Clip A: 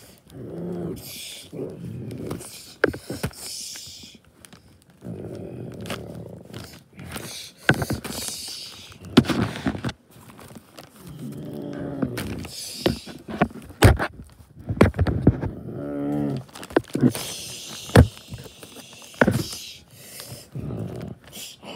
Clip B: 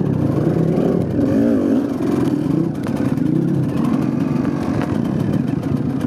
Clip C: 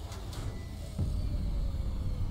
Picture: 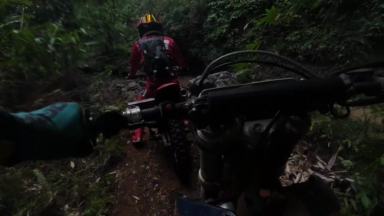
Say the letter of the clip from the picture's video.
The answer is B